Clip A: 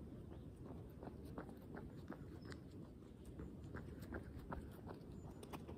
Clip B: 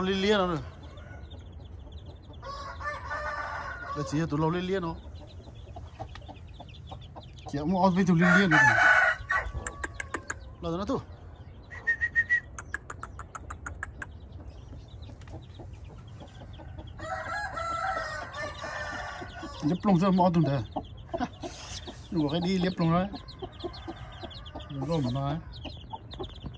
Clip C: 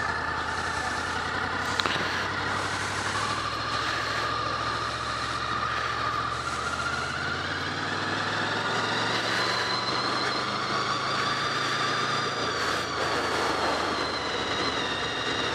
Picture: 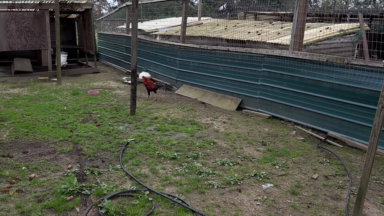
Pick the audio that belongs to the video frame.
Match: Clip B